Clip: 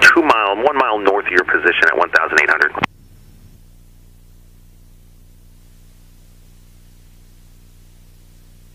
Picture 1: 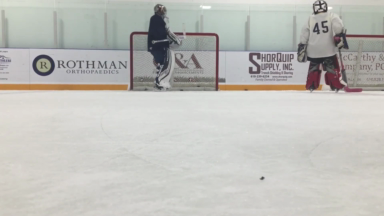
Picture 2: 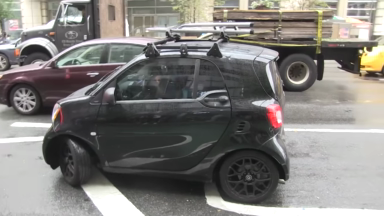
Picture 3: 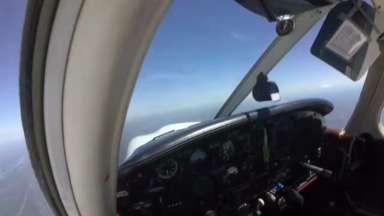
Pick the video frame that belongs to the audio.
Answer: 3